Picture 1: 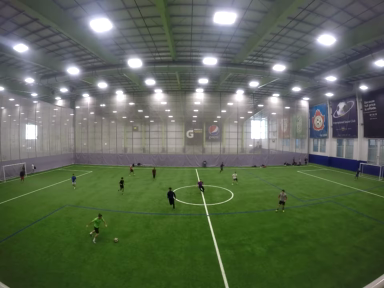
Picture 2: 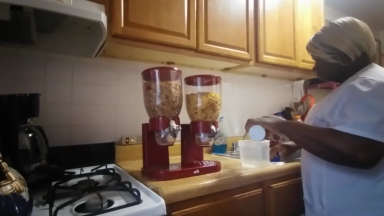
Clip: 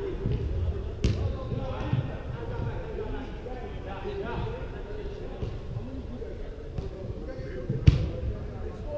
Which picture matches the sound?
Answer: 1